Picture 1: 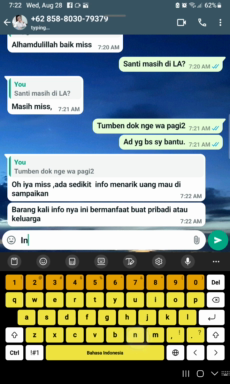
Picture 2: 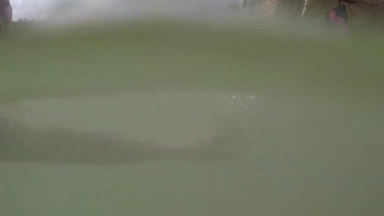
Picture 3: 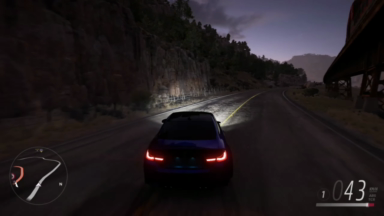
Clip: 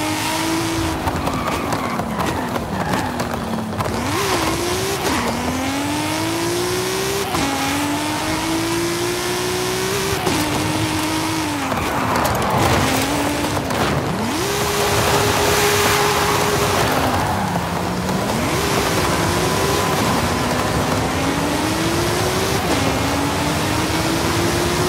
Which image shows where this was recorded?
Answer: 3